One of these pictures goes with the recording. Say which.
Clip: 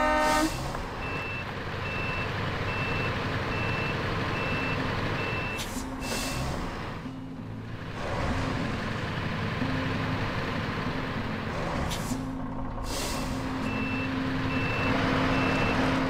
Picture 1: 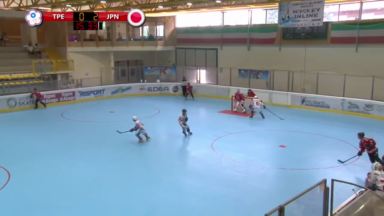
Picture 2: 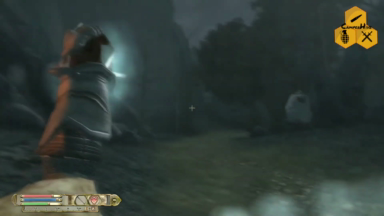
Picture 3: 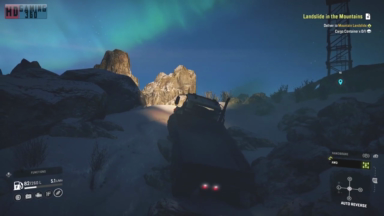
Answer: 3